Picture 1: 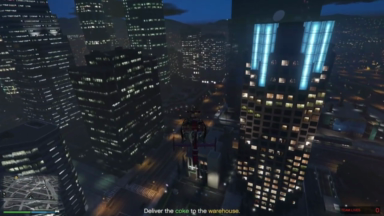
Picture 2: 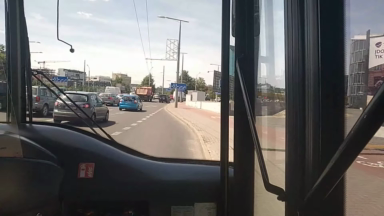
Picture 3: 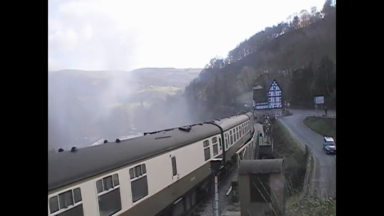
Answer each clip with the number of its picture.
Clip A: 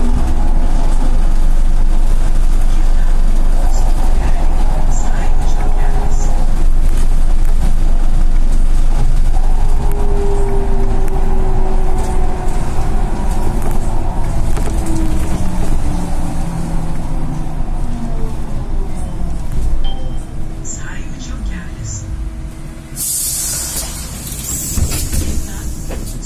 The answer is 2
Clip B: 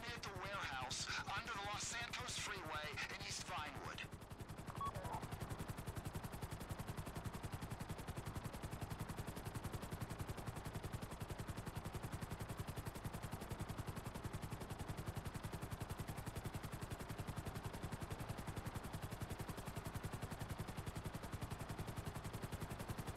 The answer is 1